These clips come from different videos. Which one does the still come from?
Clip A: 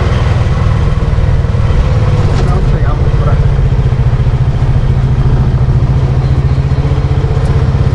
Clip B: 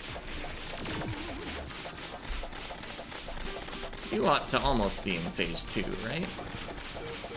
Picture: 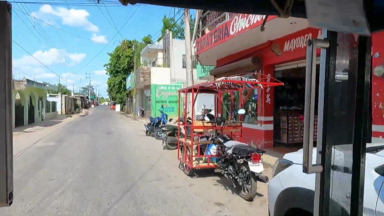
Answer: A